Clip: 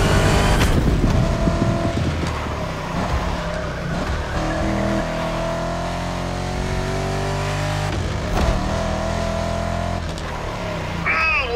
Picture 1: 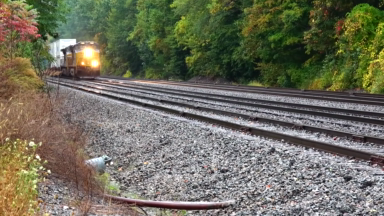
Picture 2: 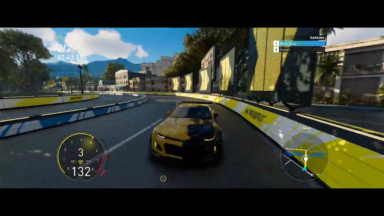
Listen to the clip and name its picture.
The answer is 2